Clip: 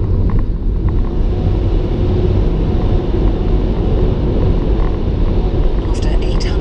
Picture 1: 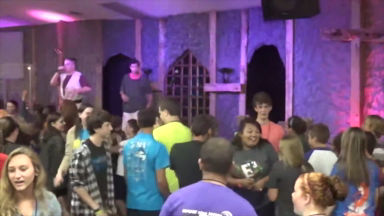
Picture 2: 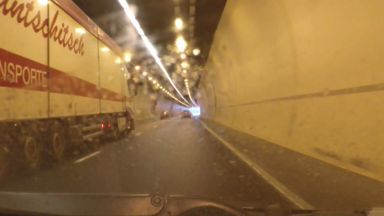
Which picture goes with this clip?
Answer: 2